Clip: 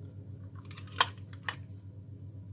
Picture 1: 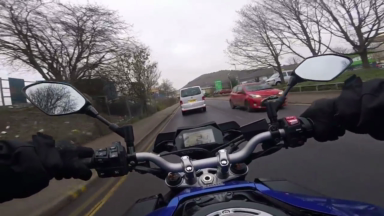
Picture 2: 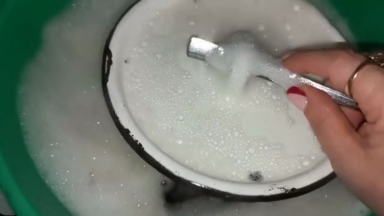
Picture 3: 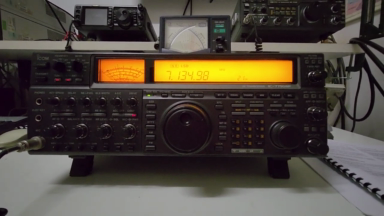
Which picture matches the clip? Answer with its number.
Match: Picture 2